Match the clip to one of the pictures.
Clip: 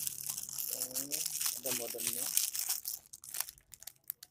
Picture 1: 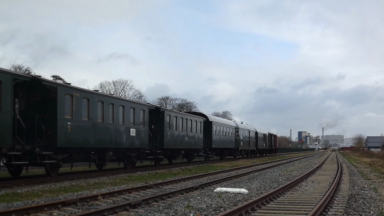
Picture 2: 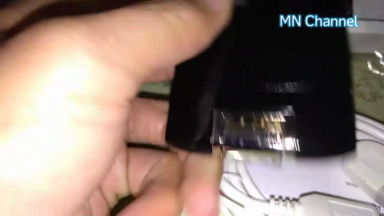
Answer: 2